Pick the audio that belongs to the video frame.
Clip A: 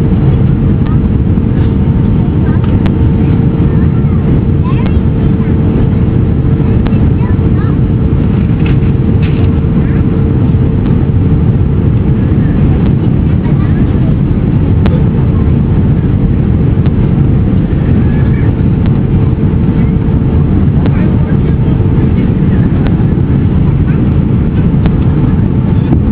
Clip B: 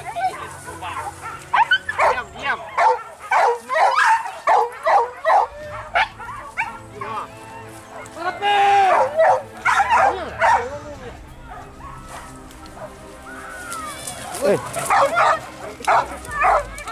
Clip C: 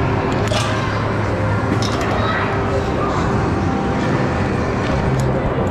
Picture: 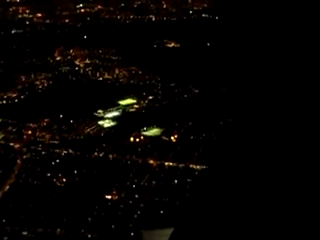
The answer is A